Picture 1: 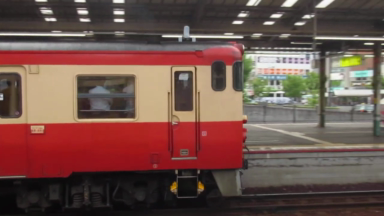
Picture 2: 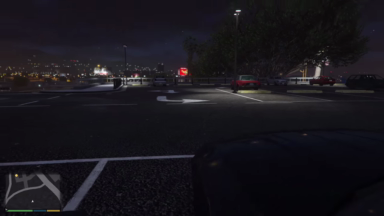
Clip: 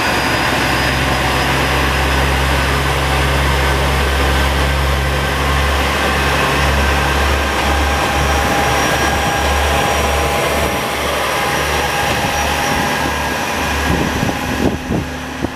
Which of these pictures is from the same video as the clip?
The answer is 1